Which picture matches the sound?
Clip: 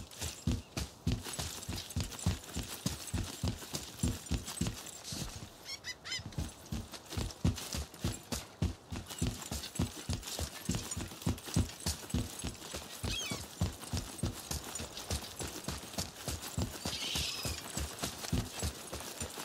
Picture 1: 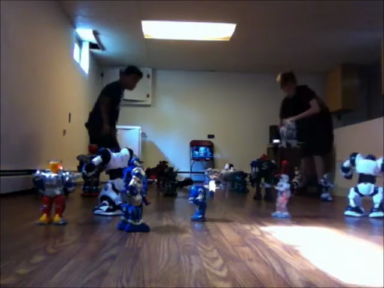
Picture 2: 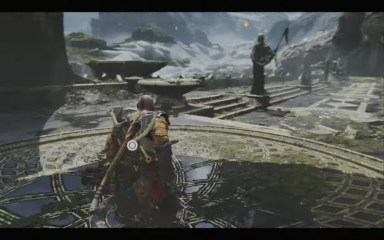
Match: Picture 2